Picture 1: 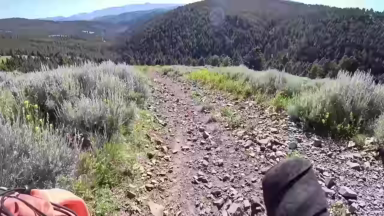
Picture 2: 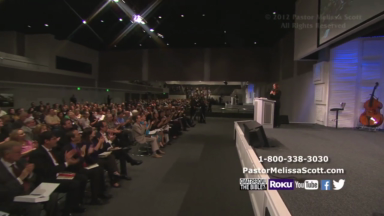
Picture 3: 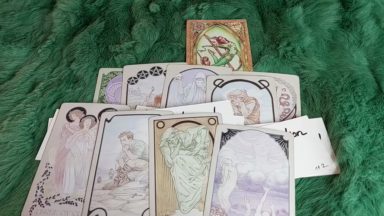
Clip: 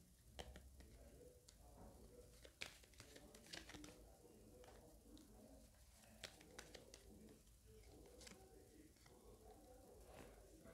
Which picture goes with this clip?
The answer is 3